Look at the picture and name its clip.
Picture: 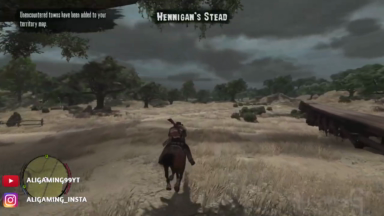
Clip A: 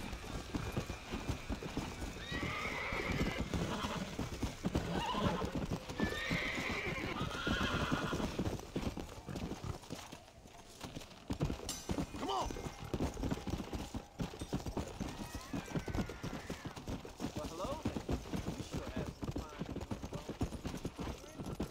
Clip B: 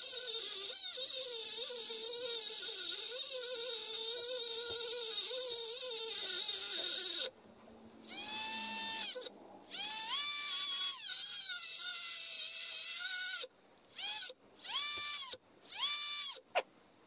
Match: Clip A